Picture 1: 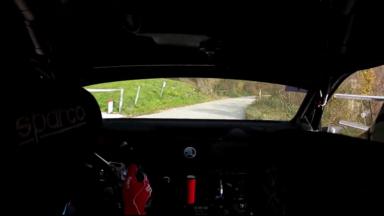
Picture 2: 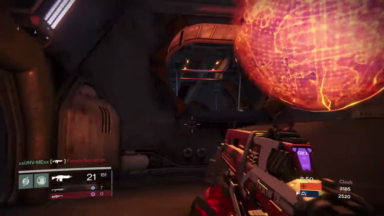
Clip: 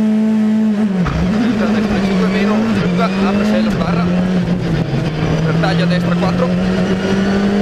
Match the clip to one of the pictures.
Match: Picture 1